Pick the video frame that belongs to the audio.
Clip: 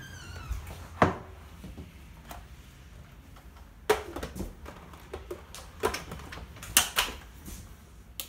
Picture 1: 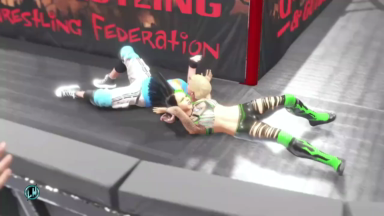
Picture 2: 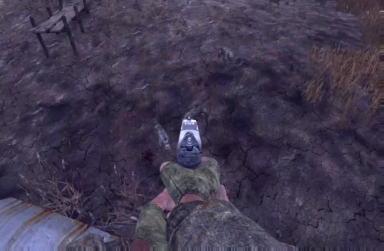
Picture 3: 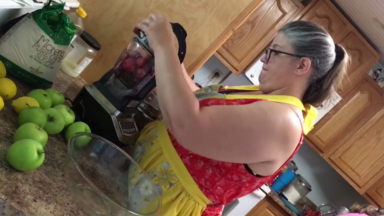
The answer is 3